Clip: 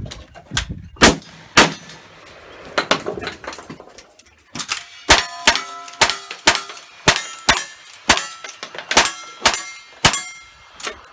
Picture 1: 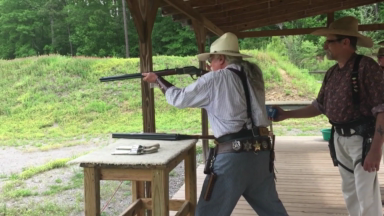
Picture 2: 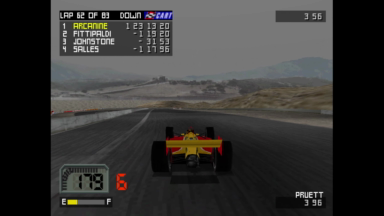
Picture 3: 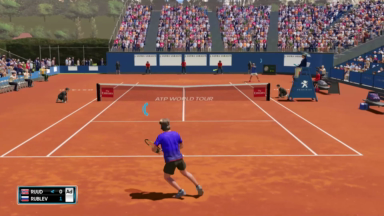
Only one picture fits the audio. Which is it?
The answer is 1